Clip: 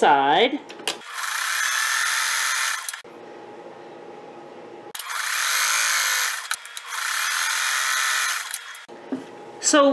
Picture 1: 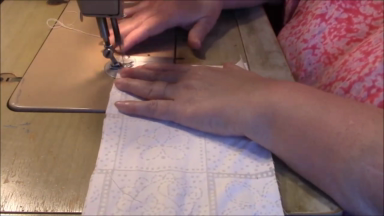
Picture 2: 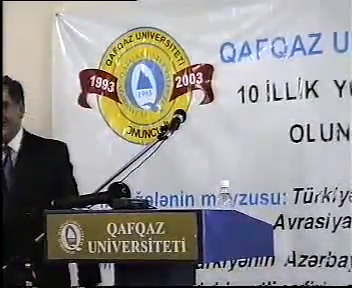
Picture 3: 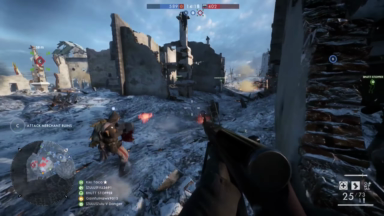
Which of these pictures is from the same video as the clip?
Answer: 1